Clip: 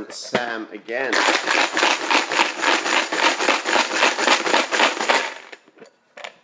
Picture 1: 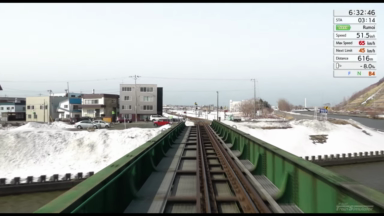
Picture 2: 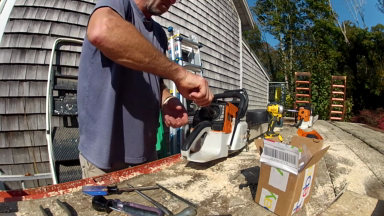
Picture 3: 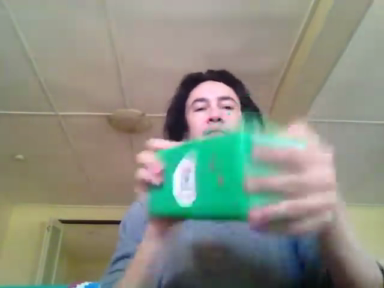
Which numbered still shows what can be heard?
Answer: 3